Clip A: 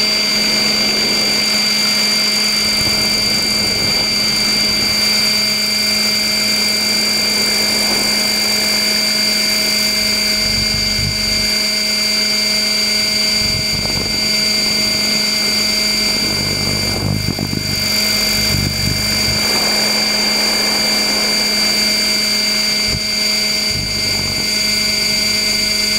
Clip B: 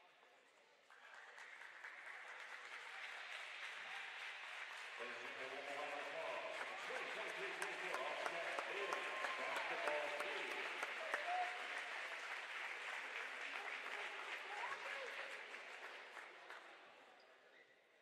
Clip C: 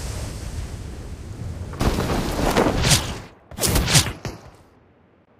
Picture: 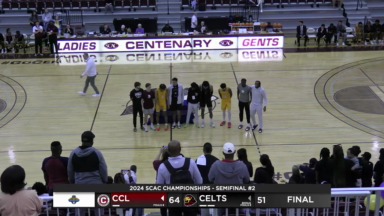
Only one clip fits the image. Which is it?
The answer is B